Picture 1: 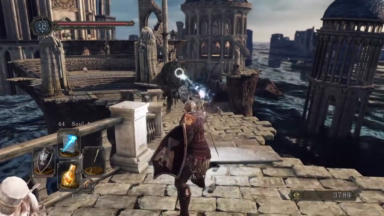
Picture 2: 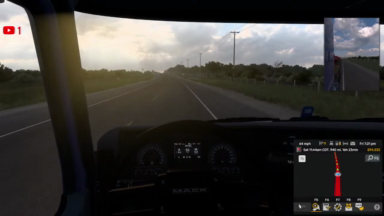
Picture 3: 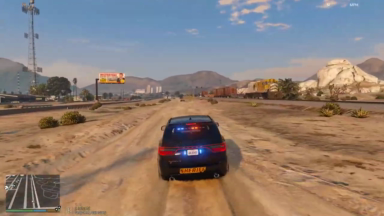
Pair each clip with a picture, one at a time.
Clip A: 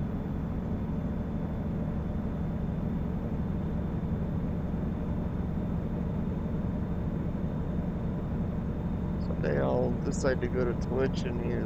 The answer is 2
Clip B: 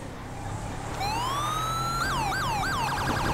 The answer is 3